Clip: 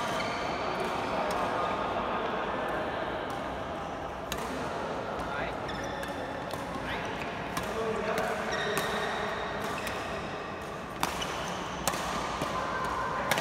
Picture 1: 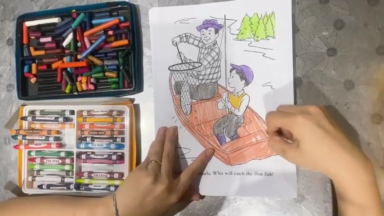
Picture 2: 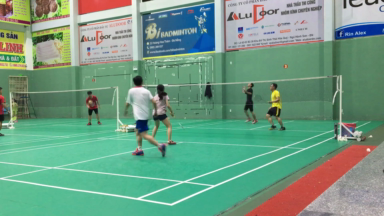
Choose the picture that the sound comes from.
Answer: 2